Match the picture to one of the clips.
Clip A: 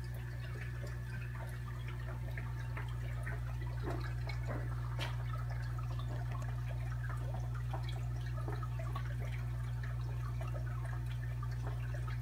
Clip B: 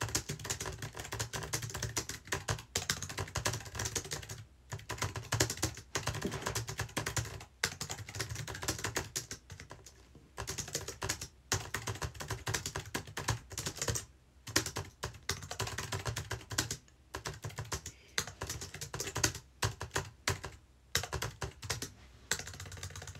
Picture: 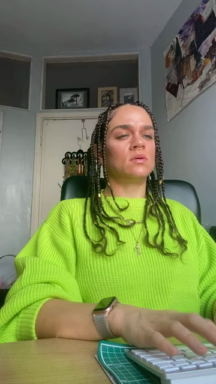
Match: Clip B